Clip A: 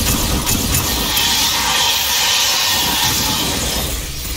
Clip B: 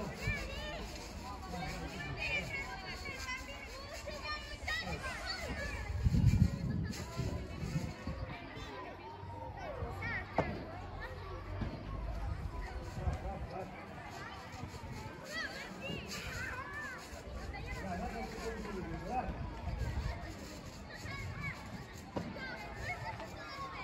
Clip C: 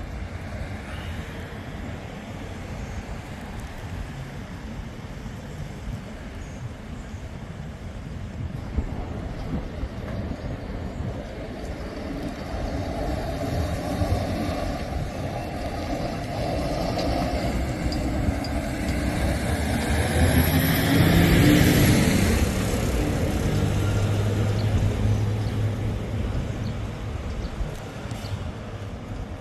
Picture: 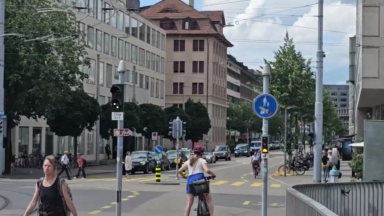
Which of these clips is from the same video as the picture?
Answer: C